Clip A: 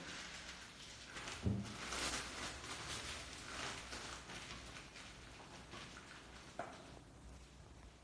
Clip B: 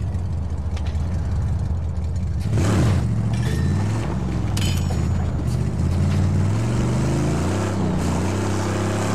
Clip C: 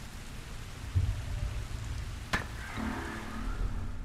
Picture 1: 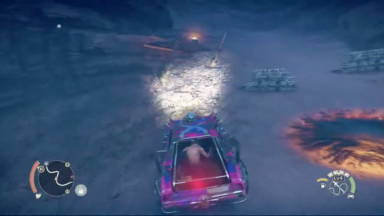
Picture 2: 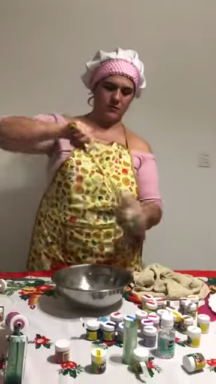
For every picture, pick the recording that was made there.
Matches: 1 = B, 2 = A